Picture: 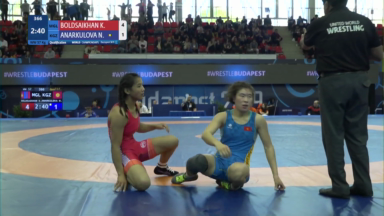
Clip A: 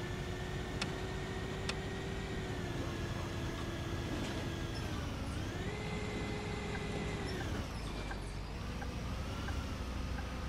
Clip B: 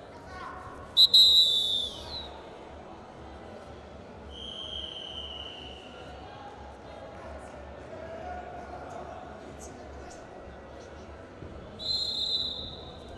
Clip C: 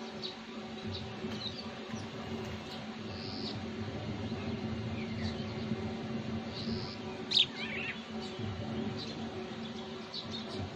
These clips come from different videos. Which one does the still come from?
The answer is B